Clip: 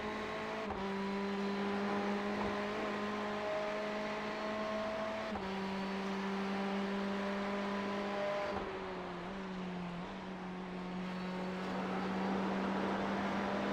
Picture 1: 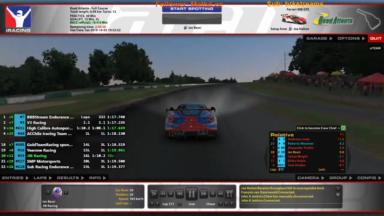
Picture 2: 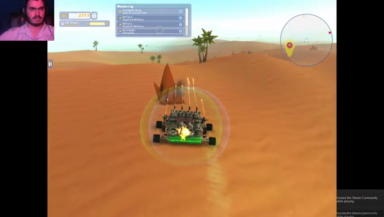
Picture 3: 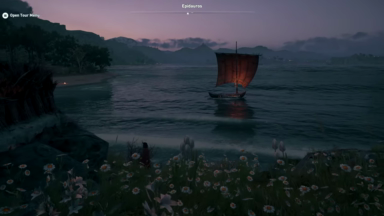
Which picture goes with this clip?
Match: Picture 1